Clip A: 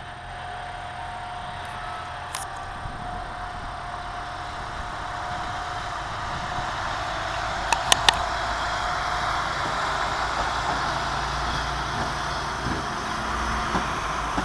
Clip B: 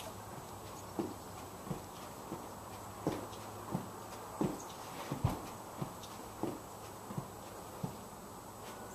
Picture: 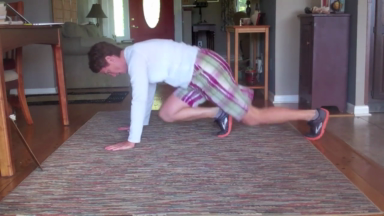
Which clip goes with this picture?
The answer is B